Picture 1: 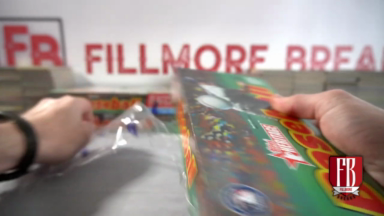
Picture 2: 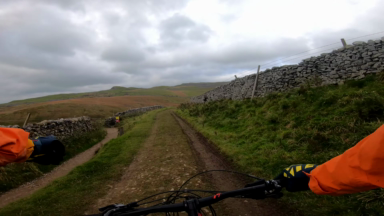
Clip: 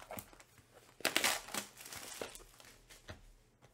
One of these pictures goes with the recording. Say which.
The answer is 1